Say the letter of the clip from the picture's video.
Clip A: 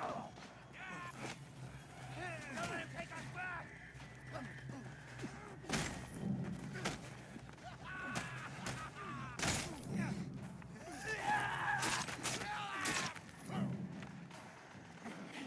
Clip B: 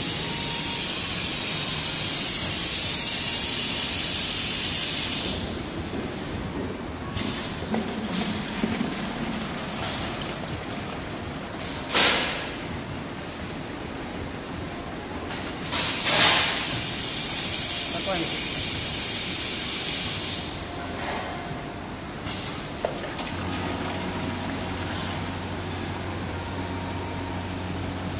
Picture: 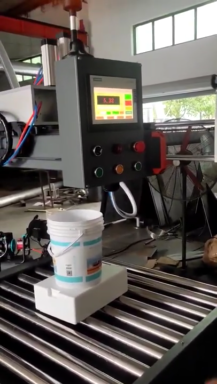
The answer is B